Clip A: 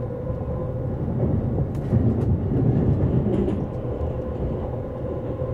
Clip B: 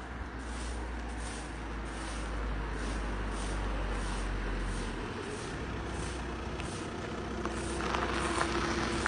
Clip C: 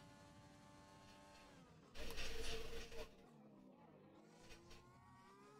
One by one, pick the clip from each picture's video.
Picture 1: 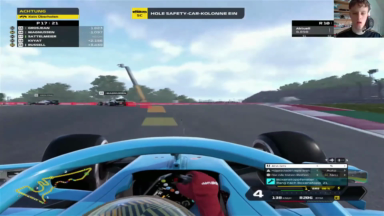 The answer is C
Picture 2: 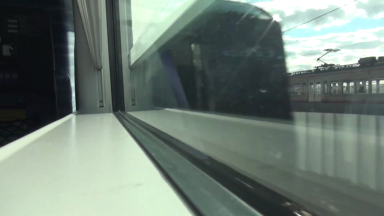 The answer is A